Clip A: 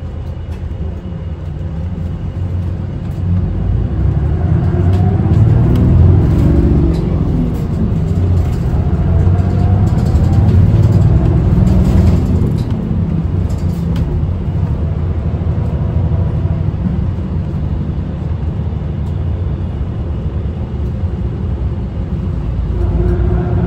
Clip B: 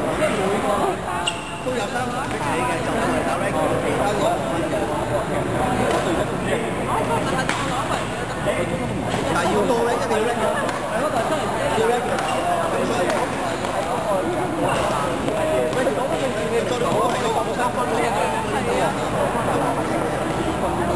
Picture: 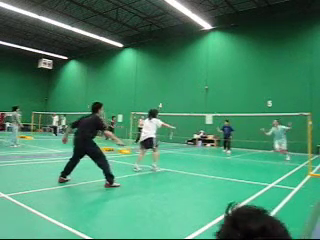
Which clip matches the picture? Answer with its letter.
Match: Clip B